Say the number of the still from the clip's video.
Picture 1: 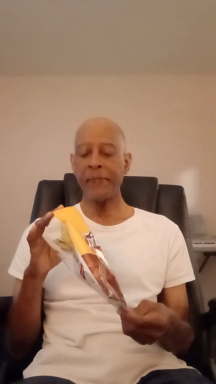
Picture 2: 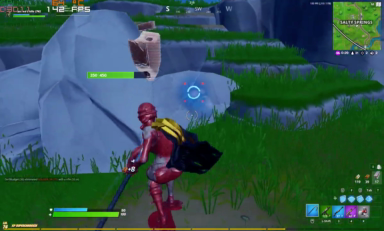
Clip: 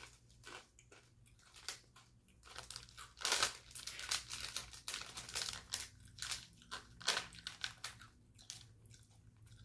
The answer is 1